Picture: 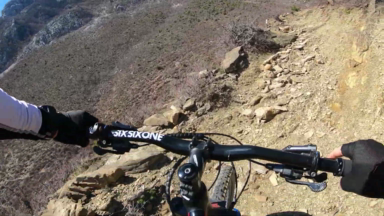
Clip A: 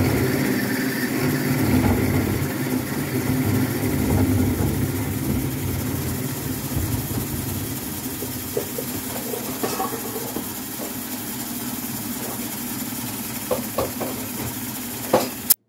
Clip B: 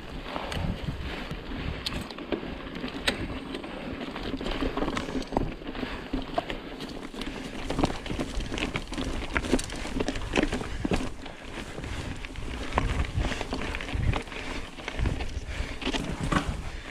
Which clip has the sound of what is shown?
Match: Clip B